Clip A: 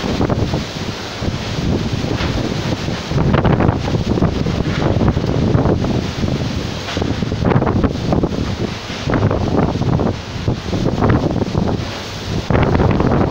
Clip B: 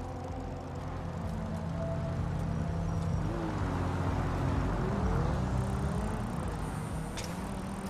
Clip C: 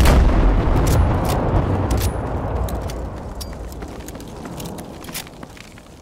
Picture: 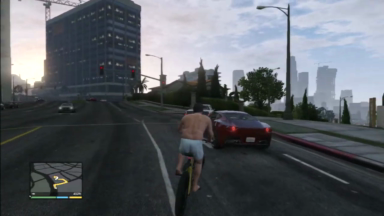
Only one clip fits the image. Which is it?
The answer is B